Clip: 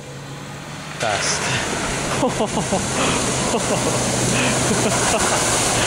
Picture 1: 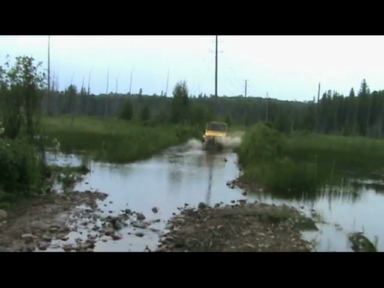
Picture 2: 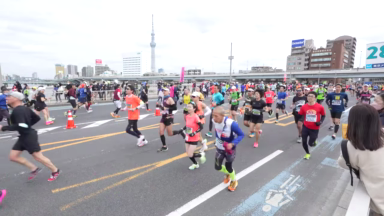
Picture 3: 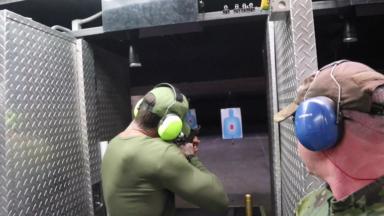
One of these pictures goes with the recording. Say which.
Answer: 1